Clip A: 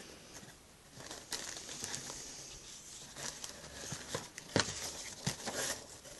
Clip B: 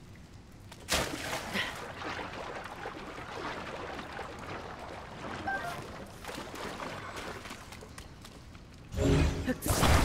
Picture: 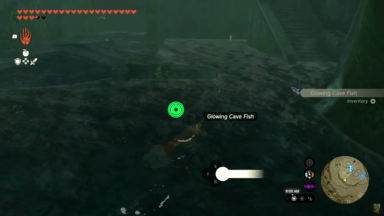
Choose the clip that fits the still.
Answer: B